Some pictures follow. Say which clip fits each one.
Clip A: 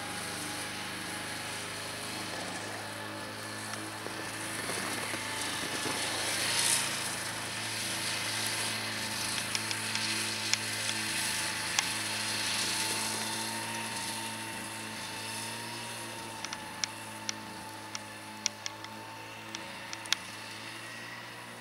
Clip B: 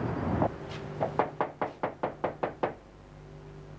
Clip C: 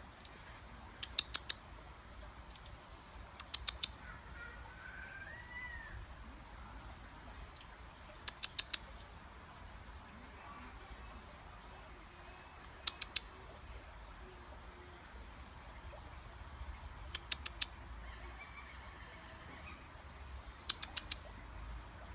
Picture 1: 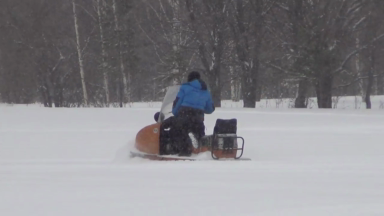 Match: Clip A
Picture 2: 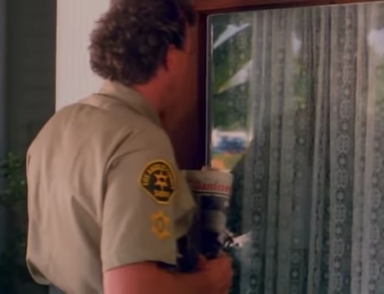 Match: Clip B